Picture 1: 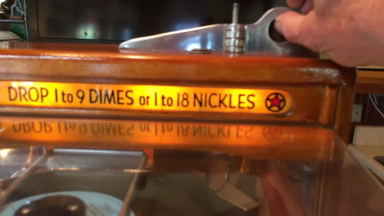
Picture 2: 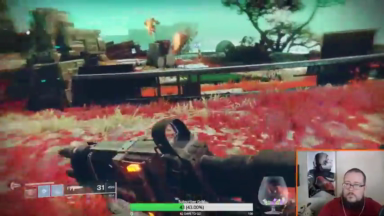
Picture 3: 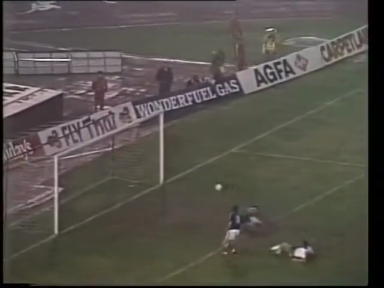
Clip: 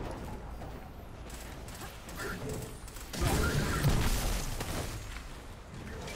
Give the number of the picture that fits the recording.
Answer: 2